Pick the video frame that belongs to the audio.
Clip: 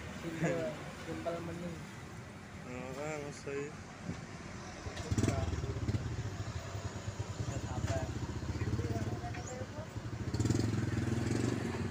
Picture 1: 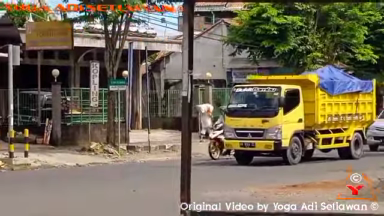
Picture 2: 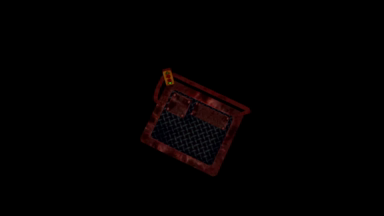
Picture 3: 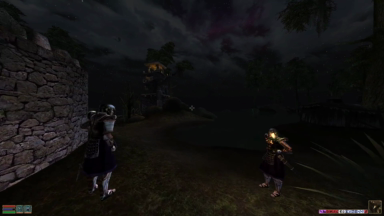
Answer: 1